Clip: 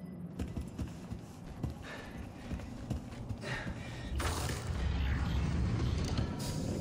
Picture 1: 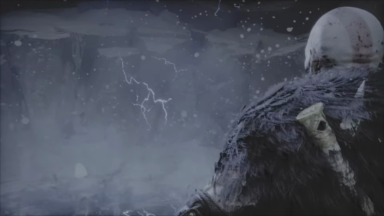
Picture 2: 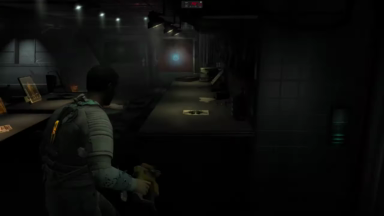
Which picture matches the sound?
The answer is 2